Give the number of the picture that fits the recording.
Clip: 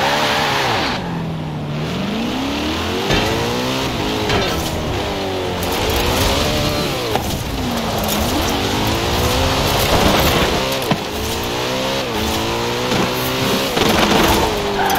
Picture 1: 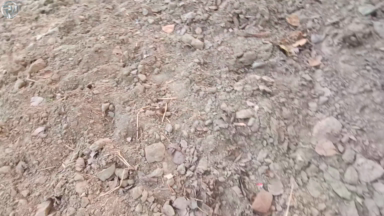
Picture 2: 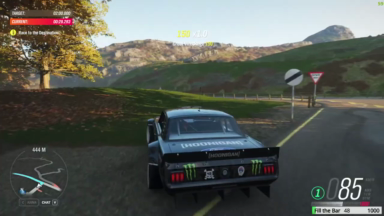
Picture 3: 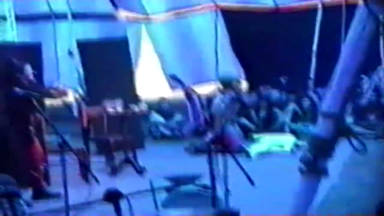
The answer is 2